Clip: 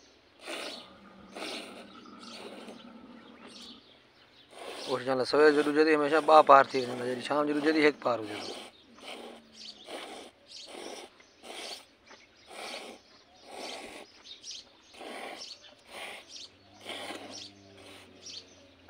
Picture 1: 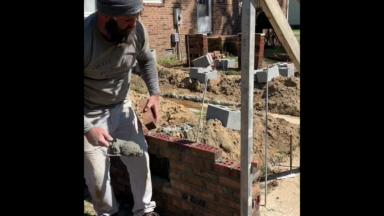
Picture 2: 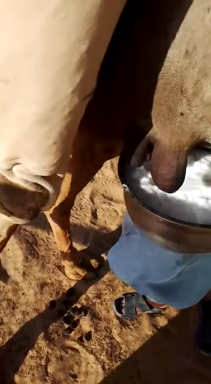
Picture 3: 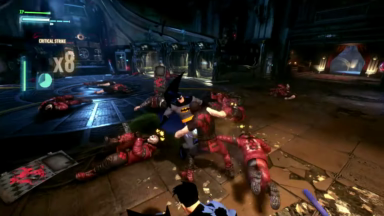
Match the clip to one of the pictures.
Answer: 2